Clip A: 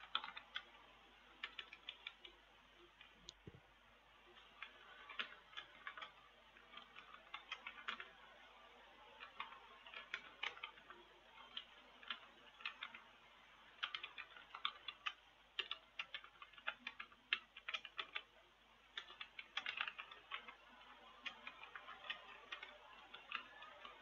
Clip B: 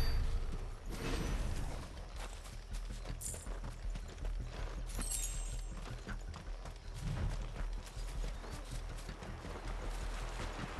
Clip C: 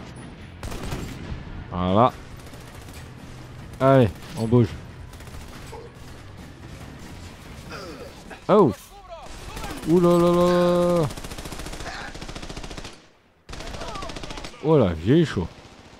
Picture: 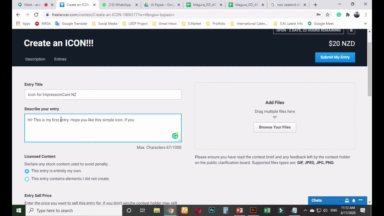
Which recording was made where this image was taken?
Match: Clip A